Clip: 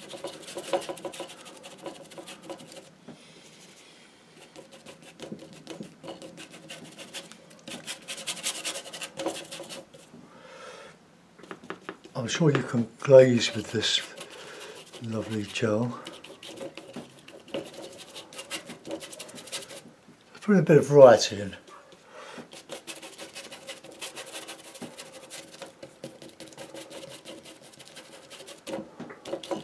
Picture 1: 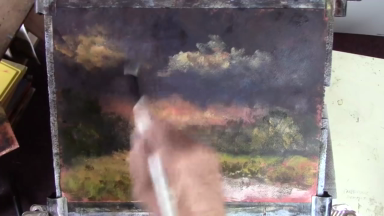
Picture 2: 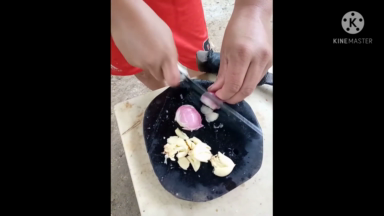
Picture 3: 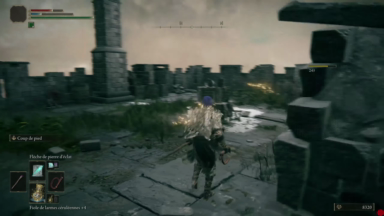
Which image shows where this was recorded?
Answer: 1